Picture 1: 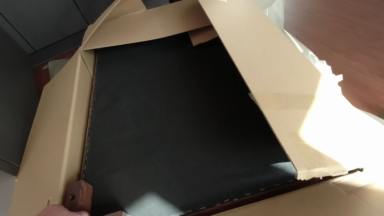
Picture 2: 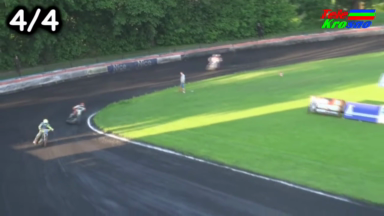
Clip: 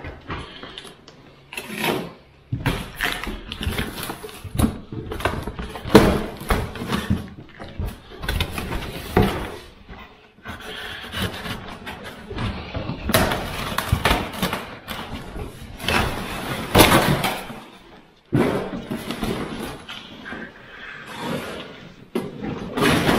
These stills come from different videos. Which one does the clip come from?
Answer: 1